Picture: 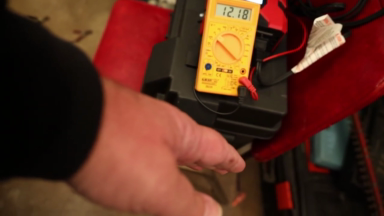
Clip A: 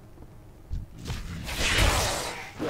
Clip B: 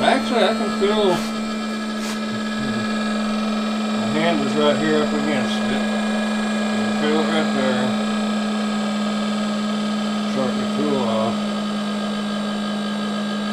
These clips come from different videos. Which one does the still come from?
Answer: B